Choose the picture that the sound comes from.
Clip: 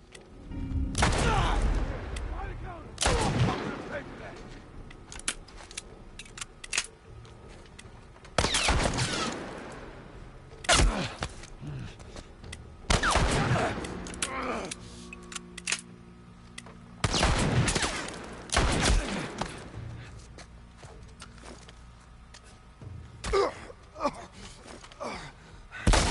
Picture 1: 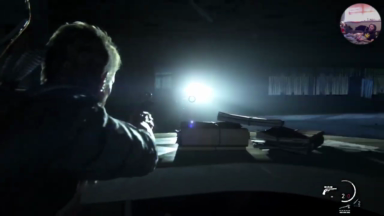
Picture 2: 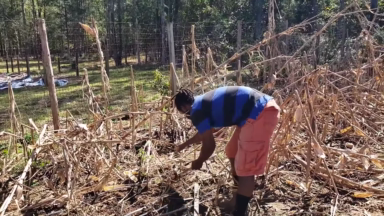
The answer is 1